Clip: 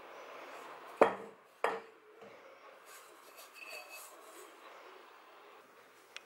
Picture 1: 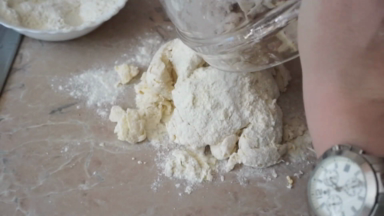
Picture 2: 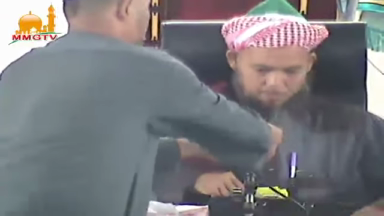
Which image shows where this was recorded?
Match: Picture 1